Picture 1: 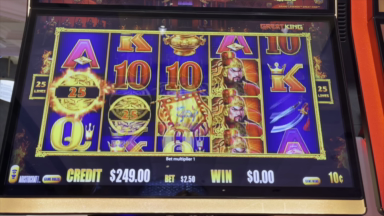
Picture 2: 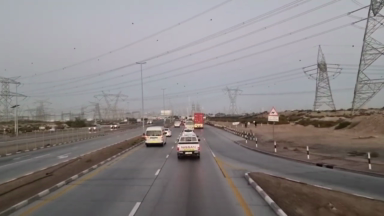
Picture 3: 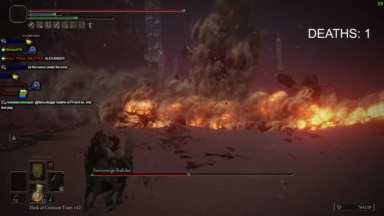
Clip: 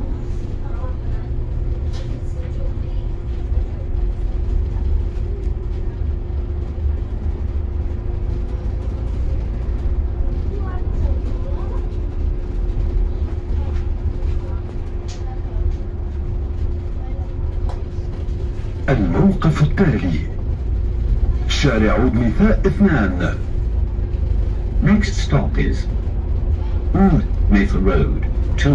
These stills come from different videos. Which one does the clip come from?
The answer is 2